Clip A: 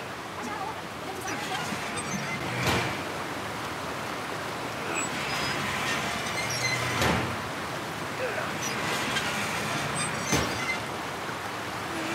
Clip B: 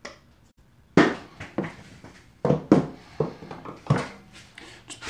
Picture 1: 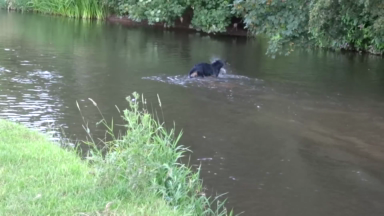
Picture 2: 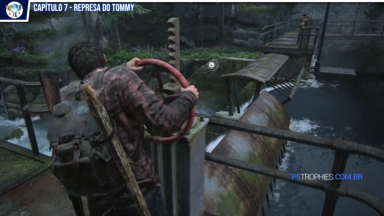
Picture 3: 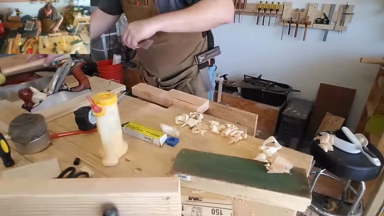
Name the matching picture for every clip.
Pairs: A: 2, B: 3